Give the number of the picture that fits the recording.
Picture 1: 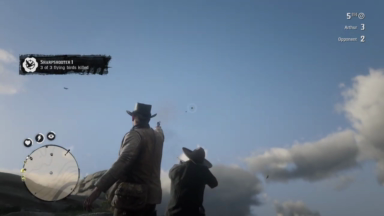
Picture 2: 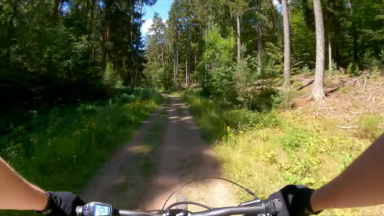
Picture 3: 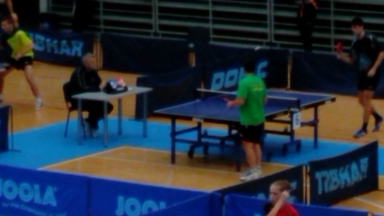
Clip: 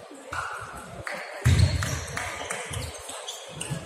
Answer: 3